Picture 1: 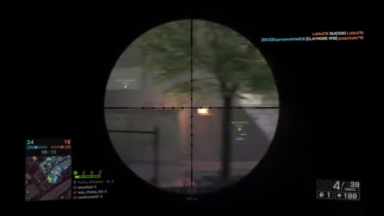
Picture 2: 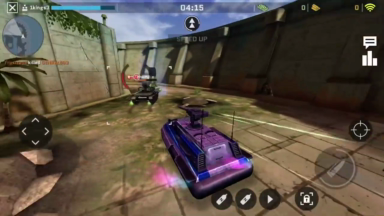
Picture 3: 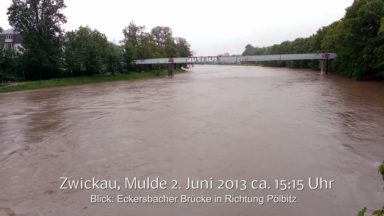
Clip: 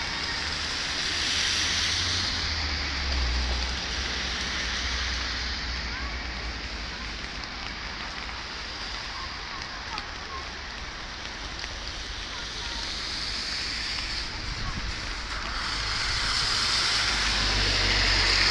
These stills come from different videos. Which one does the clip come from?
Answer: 3